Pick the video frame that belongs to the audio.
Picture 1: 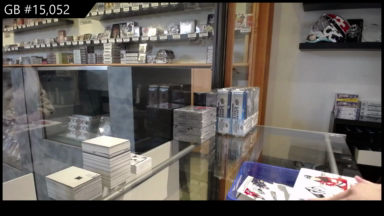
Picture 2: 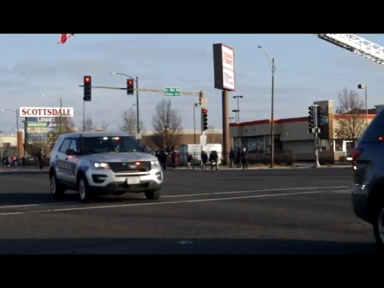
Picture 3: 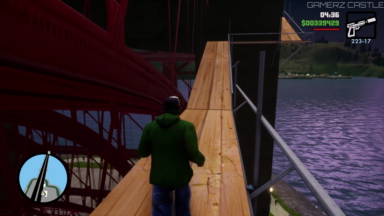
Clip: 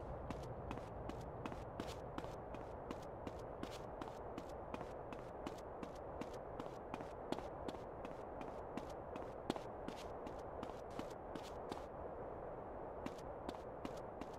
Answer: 3